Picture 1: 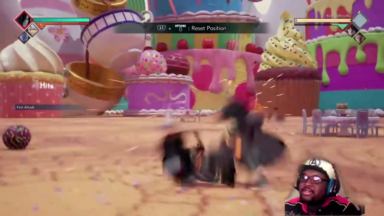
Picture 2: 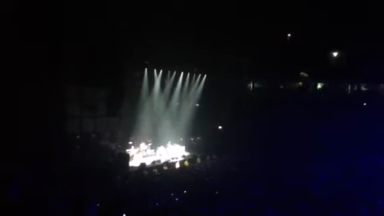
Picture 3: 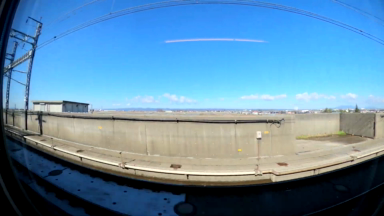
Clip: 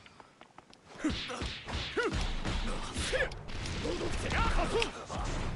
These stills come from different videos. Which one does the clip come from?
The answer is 1